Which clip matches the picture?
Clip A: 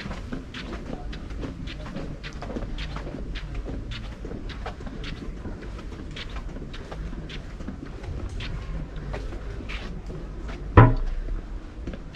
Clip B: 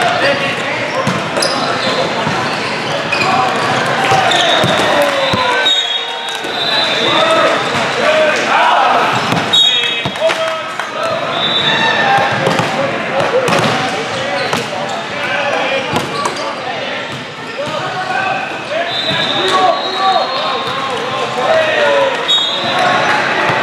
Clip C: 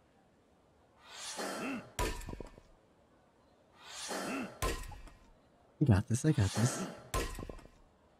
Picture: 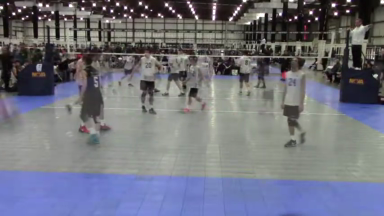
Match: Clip B